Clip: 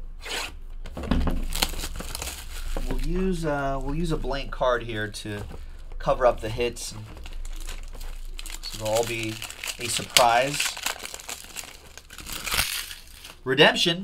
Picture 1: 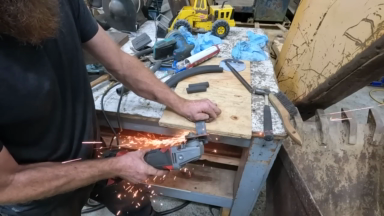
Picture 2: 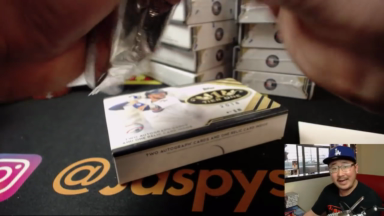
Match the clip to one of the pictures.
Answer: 2